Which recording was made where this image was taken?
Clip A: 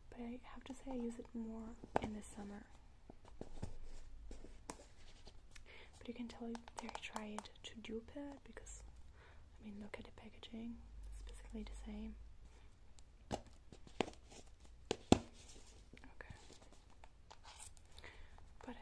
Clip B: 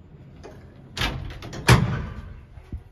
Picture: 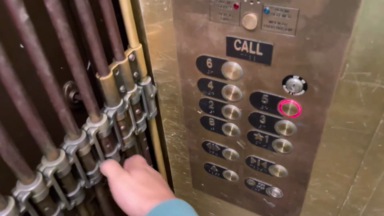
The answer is B